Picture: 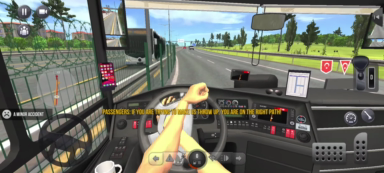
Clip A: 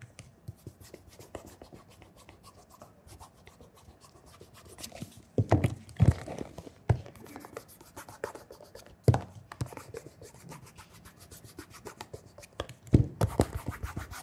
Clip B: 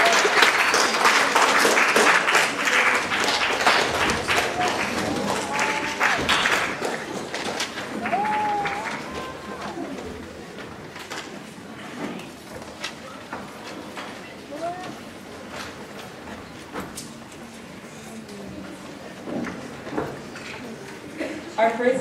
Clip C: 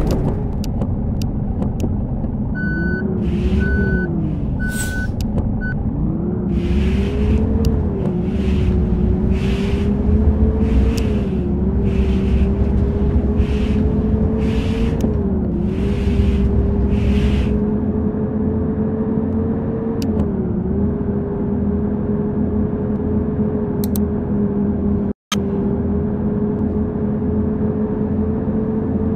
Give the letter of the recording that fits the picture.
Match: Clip C